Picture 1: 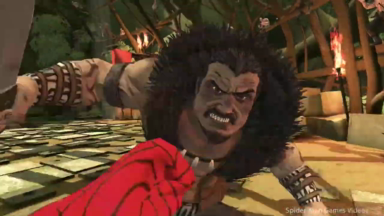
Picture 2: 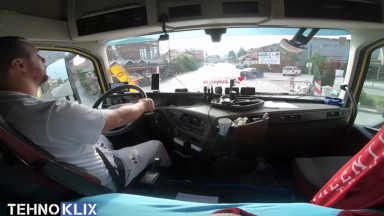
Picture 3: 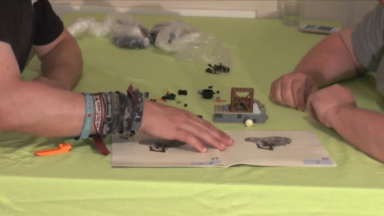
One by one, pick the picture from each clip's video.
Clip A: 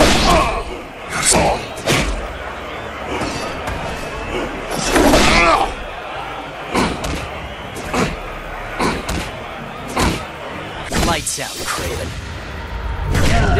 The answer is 1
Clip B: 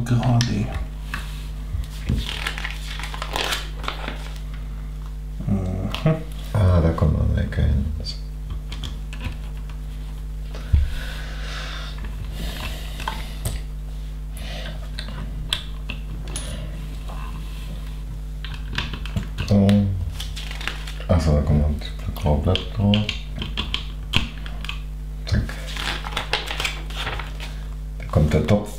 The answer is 3